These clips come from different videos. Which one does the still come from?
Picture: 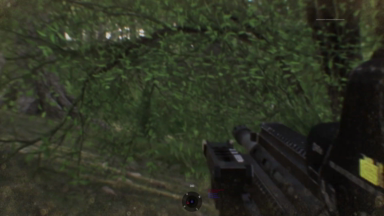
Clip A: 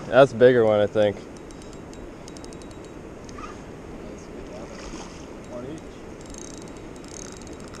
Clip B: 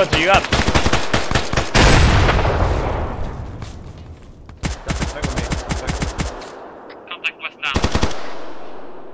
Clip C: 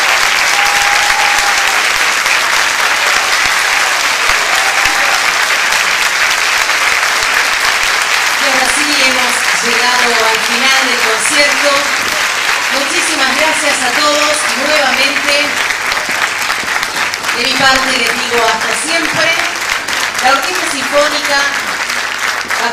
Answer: B